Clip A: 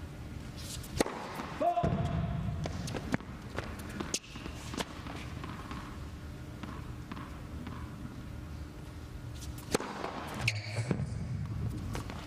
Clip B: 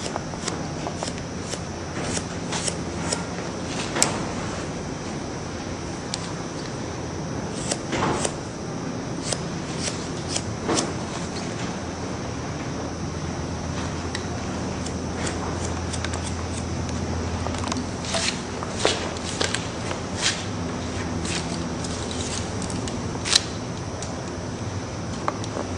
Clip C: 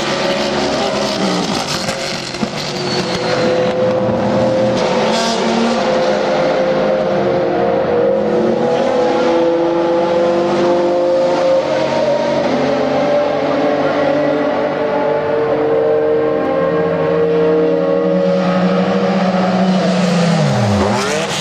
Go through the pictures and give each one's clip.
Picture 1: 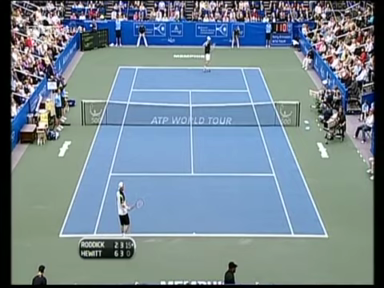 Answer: A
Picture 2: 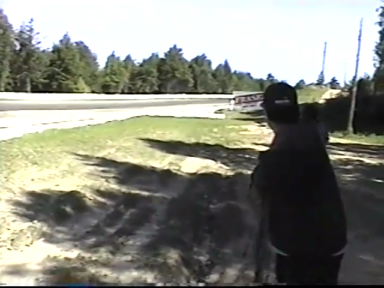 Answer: C